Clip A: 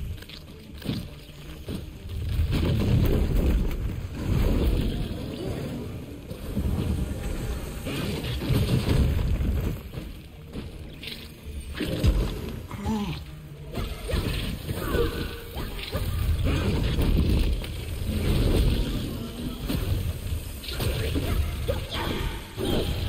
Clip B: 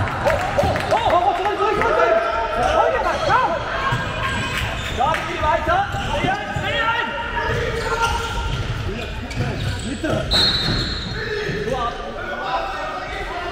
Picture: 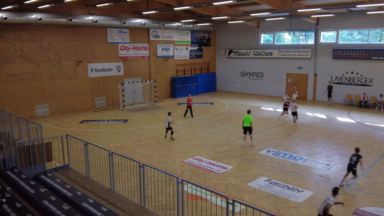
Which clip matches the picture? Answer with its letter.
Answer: B